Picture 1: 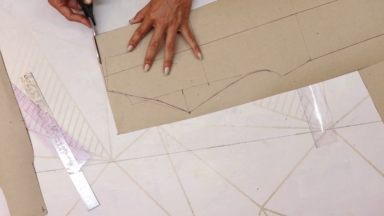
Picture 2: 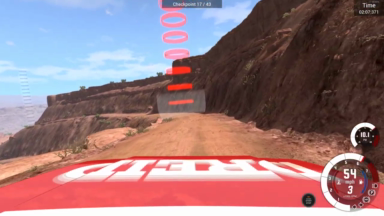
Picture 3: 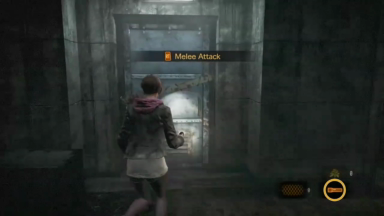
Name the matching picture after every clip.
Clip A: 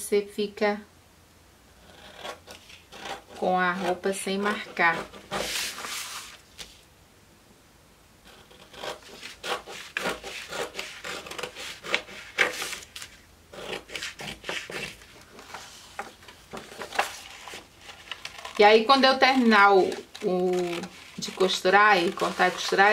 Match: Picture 1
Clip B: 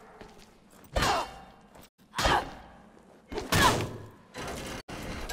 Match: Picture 3